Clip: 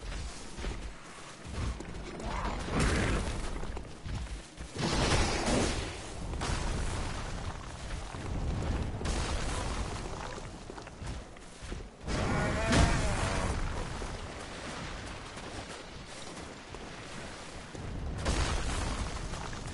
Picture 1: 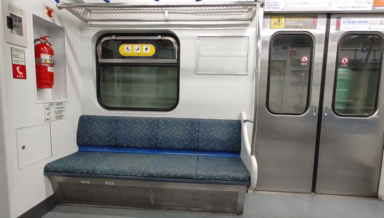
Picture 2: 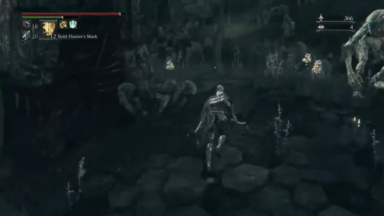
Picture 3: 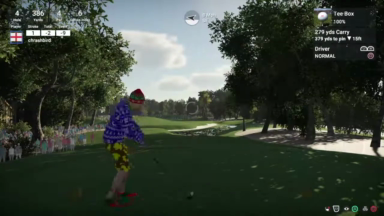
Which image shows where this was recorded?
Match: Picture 2